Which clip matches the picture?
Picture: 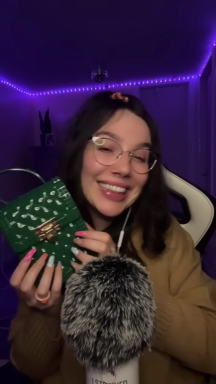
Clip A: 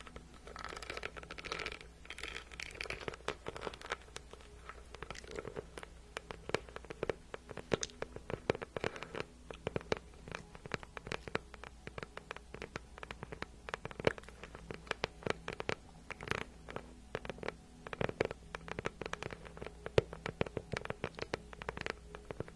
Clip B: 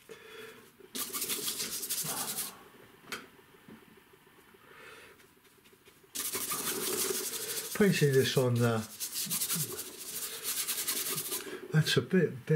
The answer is A